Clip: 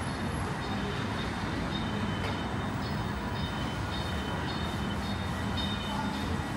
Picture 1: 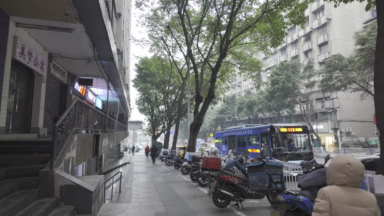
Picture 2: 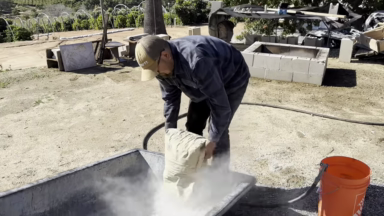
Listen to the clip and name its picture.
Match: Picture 1